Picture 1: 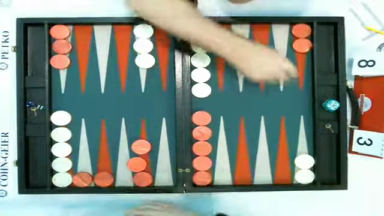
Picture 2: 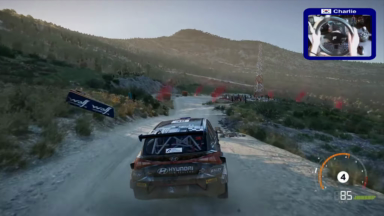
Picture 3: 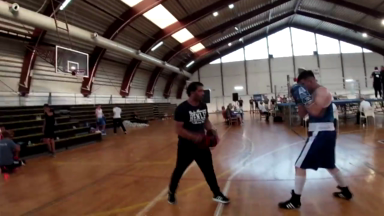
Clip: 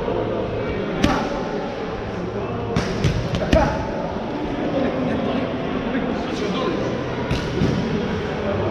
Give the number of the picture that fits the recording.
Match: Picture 3